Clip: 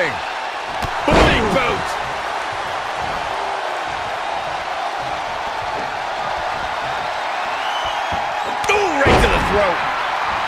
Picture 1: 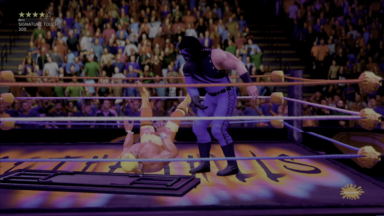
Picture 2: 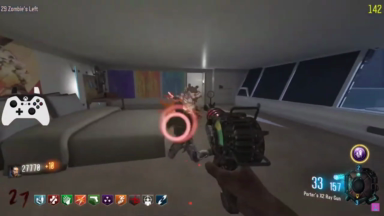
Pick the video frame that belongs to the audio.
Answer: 1